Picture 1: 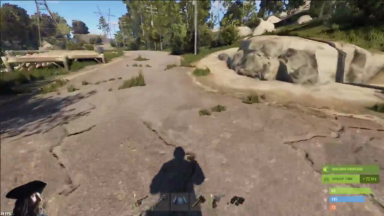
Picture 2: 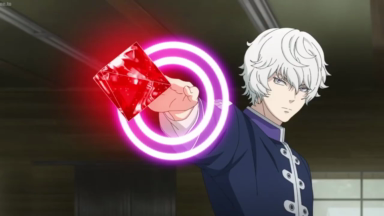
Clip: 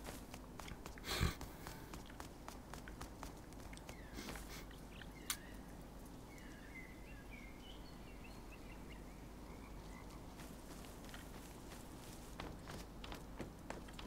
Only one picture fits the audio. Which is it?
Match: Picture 1